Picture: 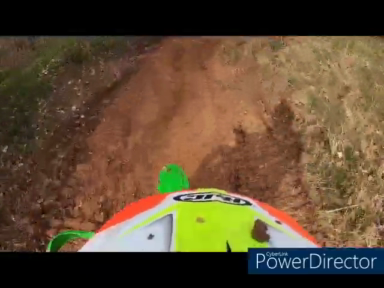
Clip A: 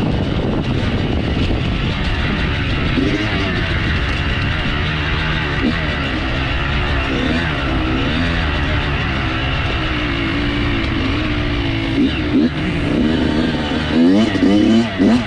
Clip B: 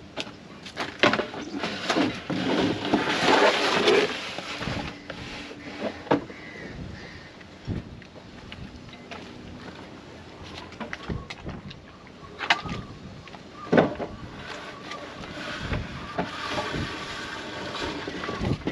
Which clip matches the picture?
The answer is A